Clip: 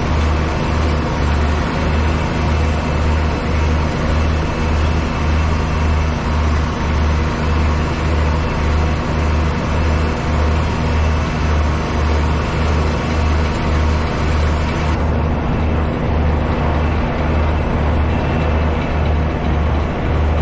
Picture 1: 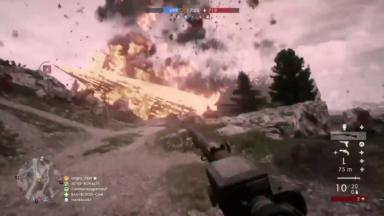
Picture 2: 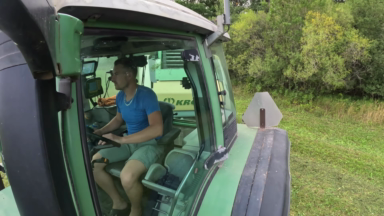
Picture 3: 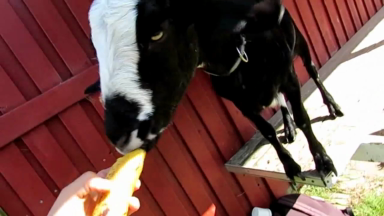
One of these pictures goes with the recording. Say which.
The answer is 2